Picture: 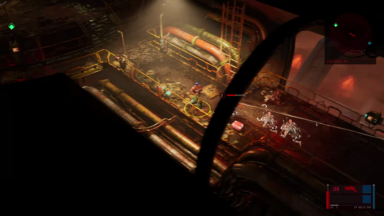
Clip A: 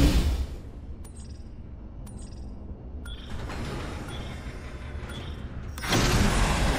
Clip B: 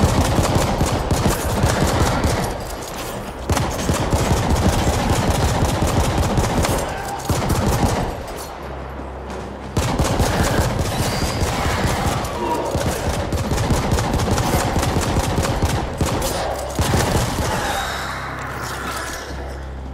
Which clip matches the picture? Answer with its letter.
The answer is B